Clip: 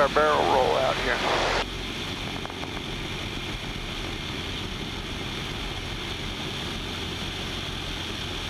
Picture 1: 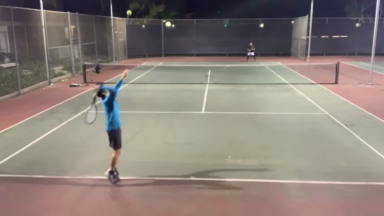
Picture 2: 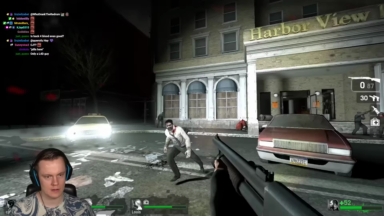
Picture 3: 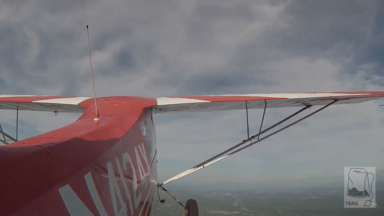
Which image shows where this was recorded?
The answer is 3